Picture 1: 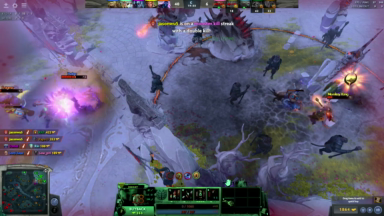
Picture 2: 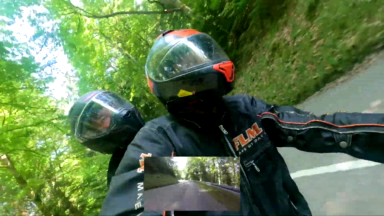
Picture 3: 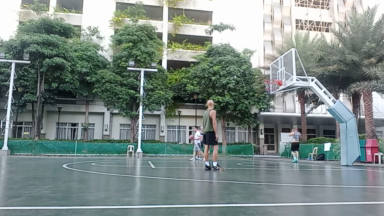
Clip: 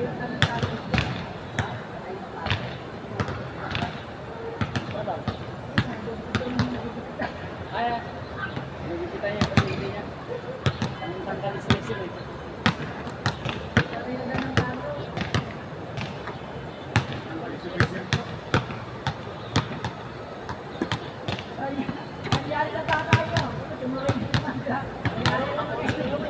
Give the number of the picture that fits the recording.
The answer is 3